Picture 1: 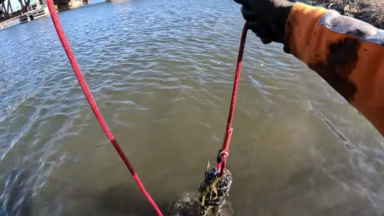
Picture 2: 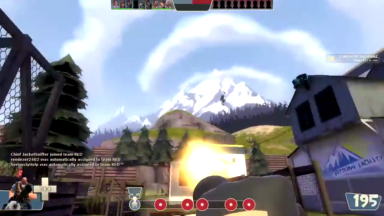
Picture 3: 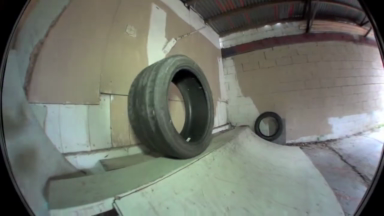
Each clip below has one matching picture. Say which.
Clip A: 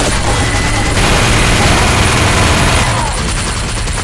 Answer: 2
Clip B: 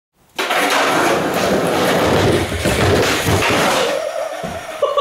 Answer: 3